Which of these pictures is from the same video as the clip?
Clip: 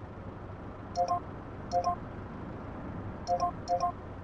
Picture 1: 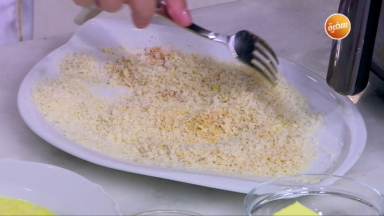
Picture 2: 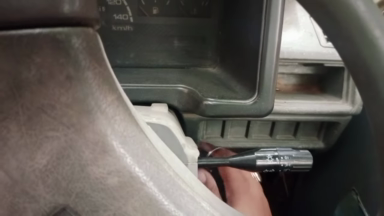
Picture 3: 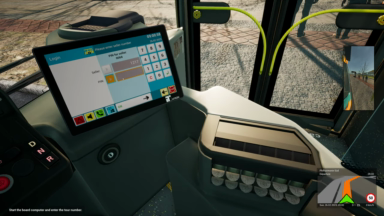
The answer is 3